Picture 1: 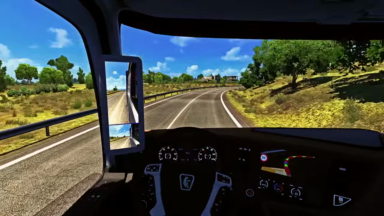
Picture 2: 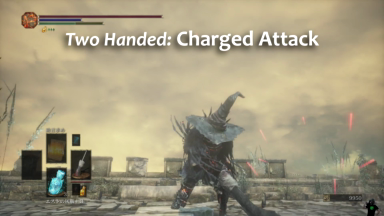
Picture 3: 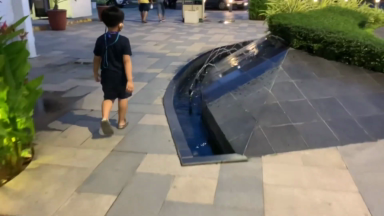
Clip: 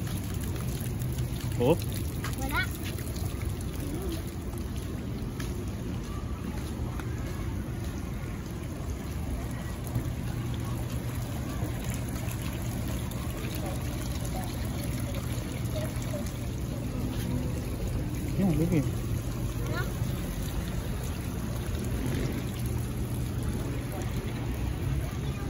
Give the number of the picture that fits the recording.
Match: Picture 3